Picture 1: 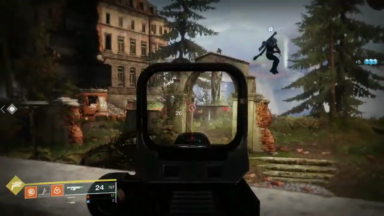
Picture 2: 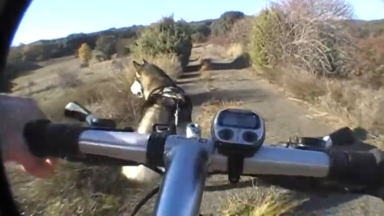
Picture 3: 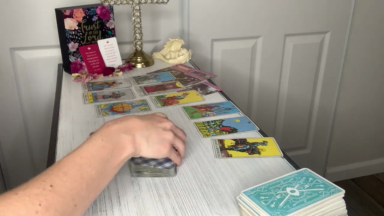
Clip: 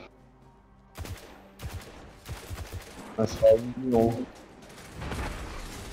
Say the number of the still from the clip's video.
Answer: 1